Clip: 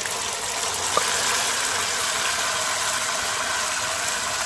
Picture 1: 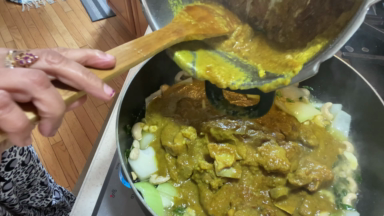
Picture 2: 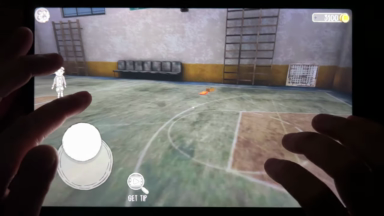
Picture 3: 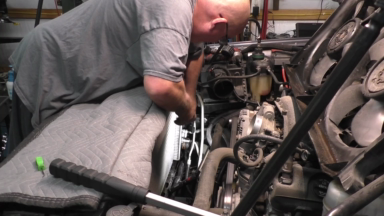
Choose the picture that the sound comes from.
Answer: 1